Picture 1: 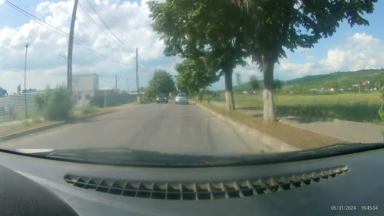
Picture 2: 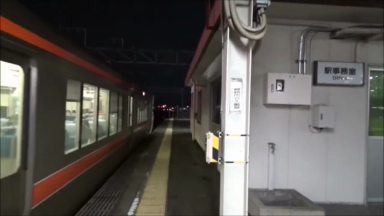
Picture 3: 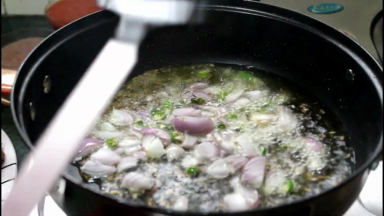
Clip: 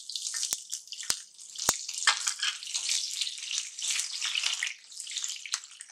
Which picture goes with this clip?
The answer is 3